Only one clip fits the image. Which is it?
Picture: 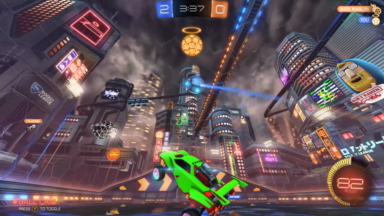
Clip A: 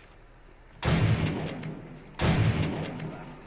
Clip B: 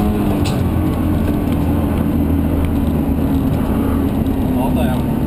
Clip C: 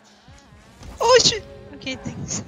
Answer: C